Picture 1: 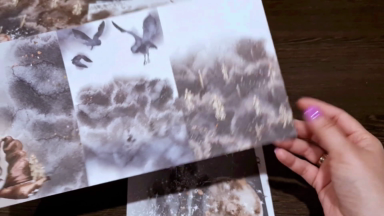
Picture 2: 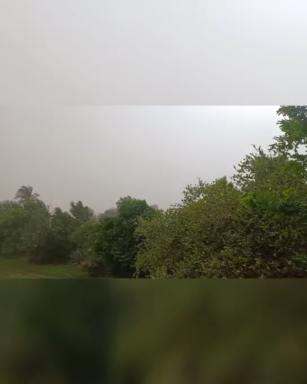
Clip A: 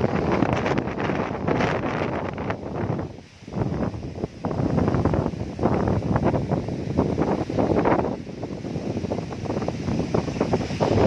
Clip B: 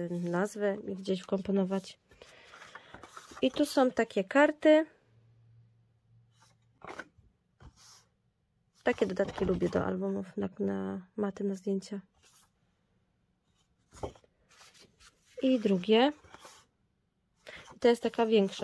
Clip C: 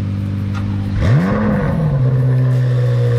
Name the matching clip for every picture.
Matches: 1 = B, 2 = A